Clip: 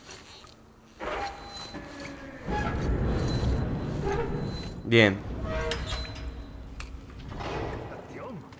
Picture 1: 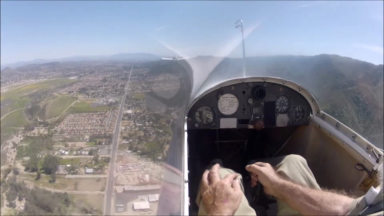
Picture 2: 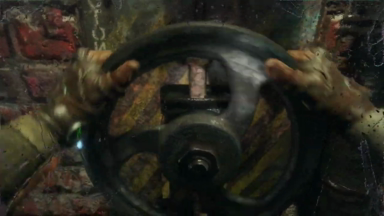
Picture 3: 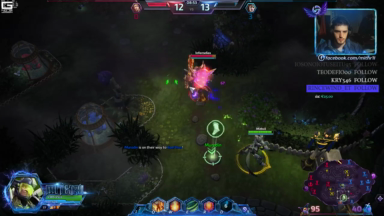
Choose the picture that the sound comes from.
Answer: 2